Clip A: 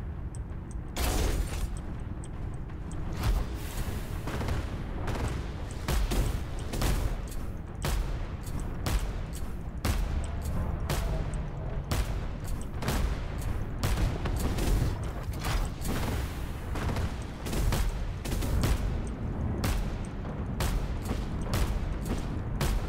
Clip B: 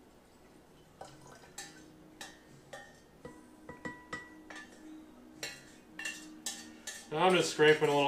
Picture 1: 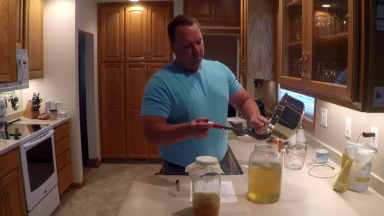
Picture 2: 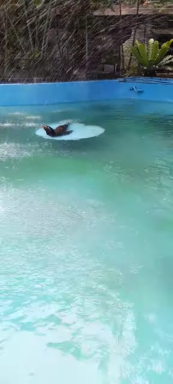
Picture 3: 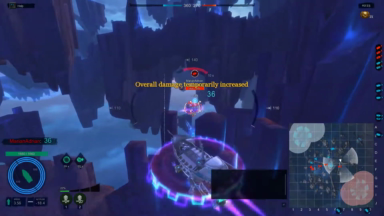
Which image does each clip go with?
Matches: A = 3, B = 1